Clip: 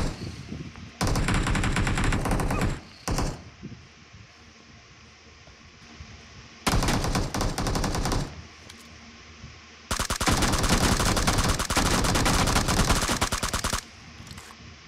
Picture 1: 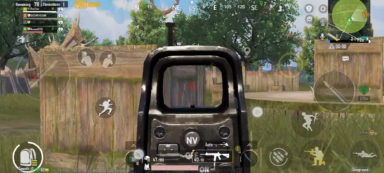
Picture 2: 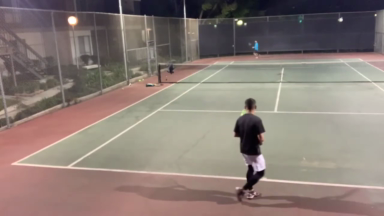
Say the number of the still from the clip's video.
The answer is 1